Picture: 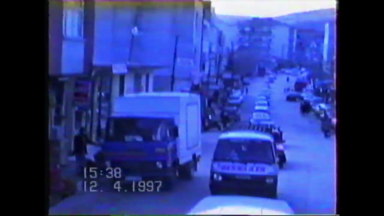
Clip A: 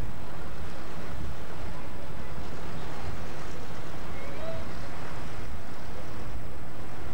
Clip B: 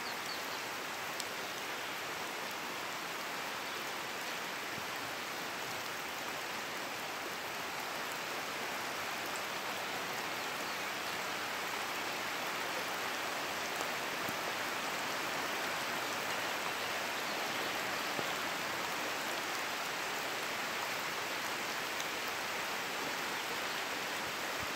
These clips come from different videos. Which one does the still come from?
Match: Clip A